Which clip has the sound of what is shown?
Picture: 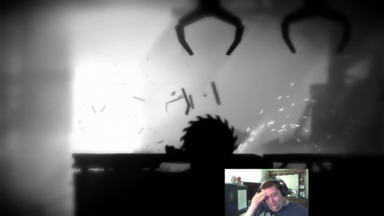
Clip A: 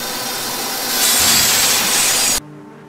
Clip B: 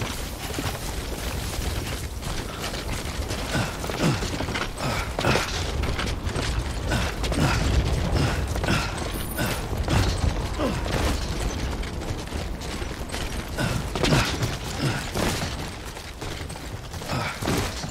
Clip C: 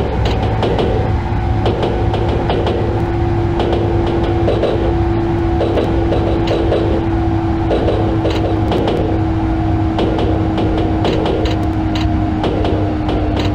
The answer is A